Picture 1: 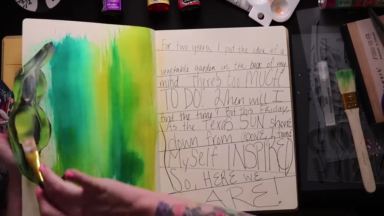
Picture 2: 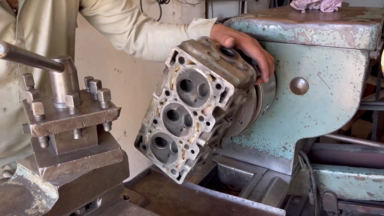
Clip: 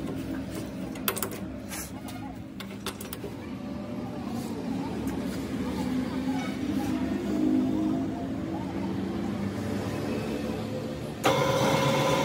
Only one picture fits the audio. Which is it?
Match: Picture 2